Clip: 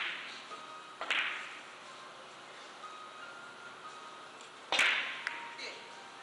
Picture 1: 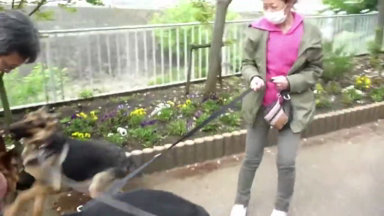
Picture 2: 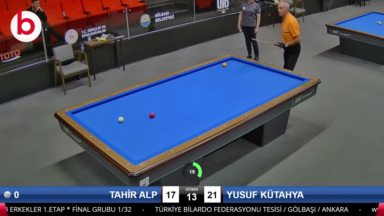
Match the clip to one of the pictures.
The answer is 2